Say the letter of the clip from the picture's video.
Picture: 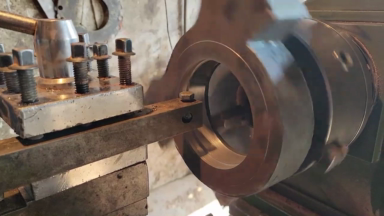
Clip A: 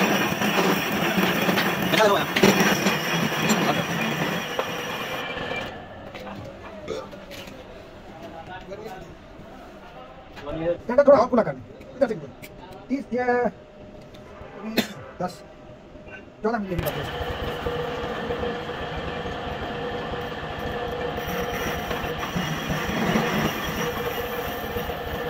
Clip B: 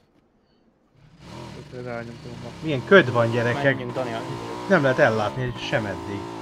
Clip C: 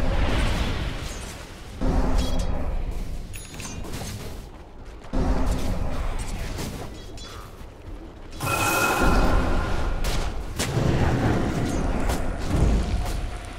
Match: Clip A